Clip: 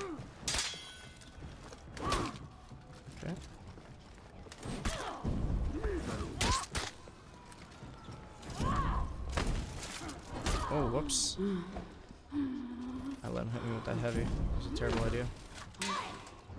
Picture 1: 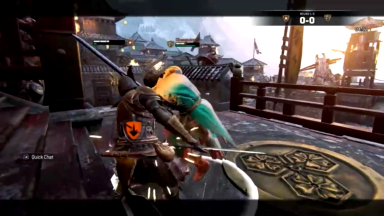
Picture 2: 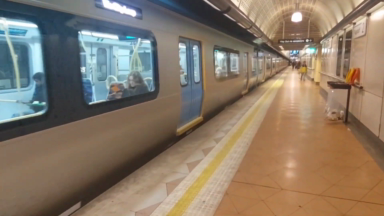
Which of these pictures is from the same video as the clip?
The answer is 1